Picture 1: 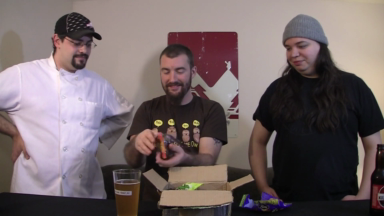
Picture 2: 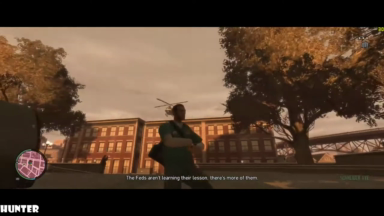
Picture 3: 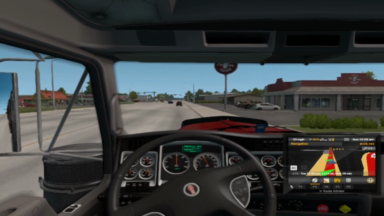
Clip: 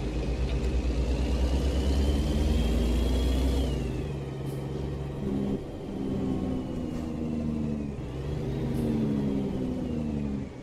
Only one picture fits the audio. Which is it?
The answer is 3